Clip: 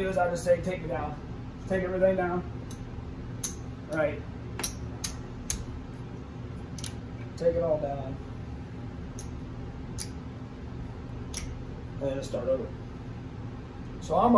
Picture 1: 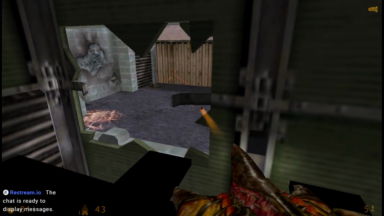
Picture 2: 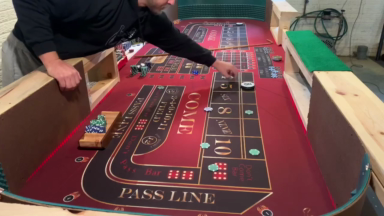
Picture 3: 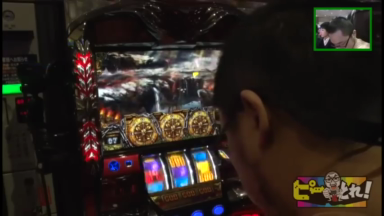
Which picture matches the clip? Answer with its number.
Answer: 2